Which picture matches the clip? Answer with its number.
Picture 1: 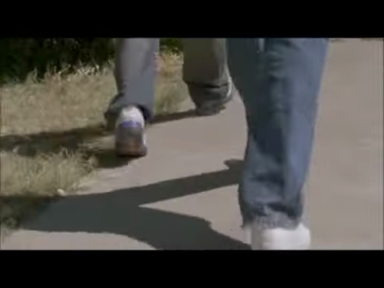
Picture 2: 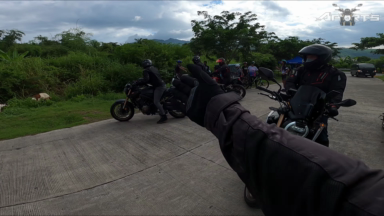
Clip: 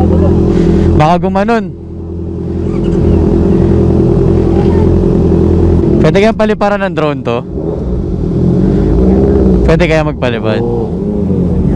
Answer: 2